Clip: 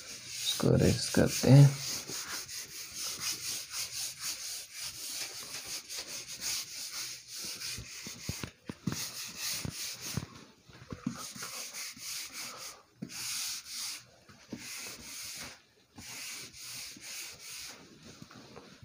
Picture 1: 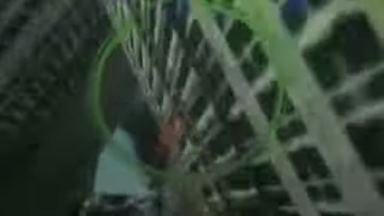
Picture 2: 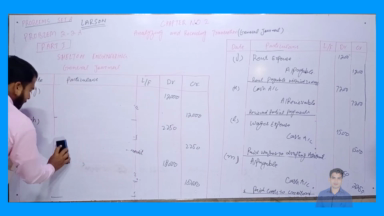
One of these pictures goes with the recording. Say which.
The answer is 2